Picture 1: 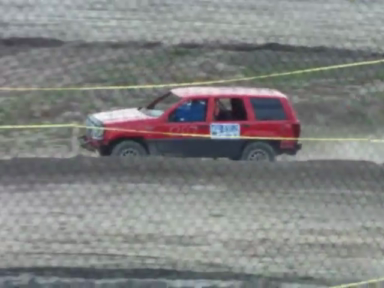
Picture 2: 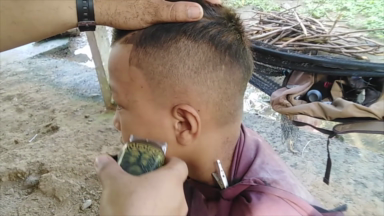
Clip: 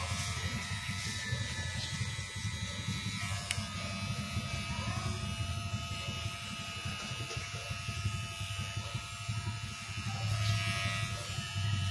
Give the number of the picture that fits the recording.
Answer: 2